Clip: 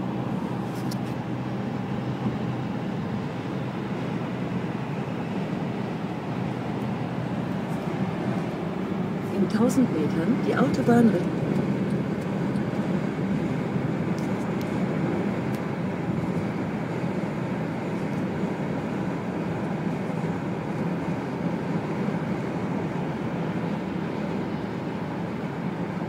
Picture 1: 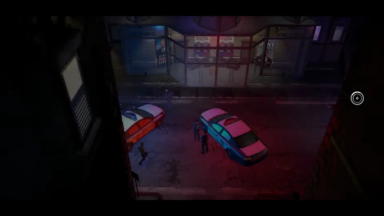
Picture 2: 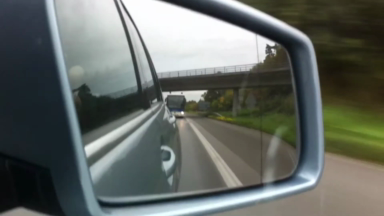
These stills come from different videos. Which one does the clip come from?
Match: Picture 2